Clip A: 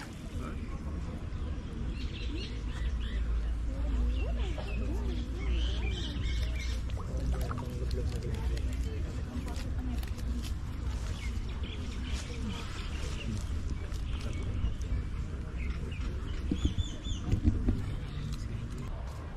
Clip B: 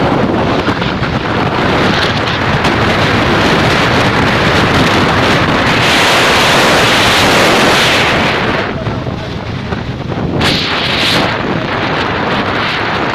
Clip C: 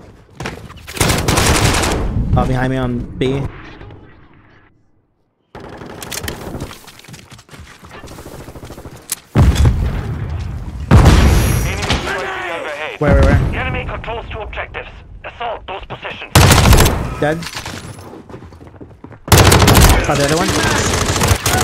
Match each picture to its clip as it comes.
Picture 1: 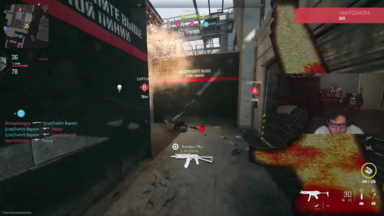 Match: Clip C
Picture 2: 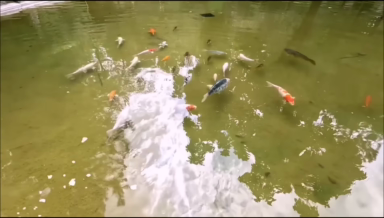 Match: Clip A